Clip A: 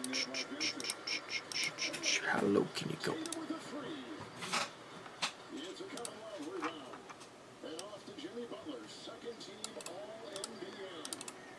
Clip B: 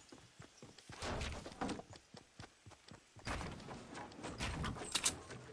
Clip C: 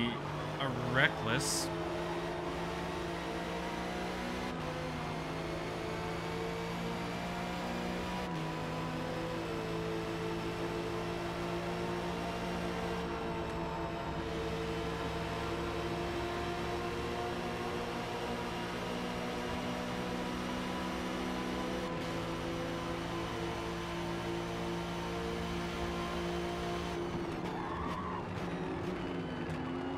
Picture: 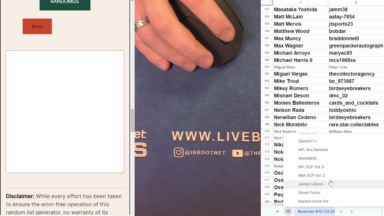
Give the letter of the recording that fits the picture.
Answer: A